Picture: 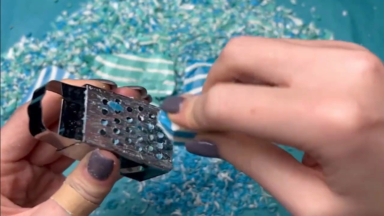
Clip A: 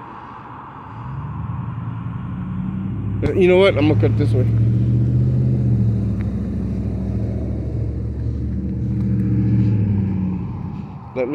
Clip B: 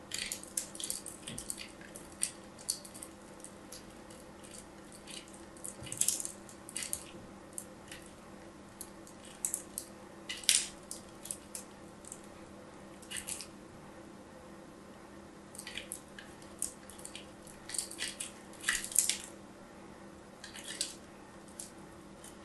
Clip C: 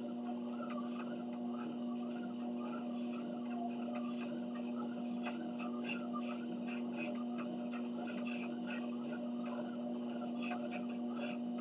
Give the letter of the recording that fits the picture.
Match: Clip B